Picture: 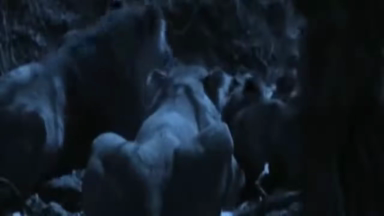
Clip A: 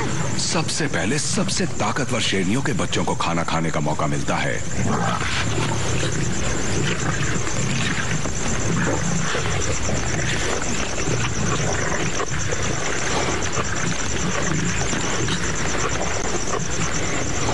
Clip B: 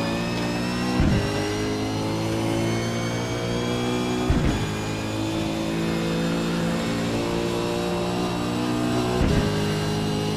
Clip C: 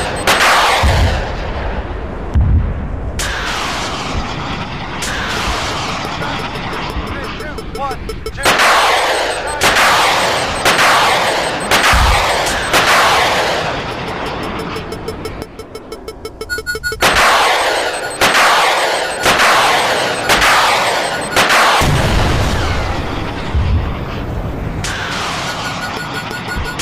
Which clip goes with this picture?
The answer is A